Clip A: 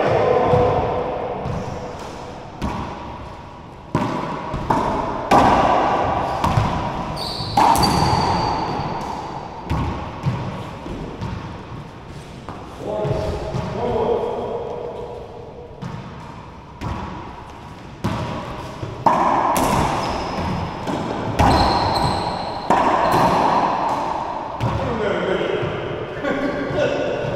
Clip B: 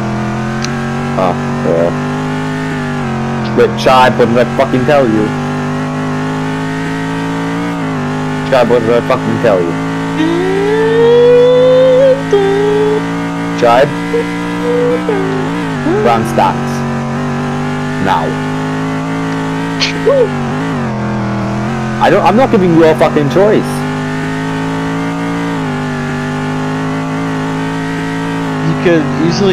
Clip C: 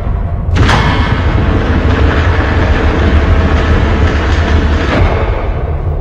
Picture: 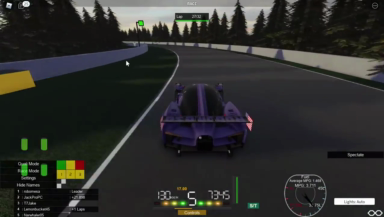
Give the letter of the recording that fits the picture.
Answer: B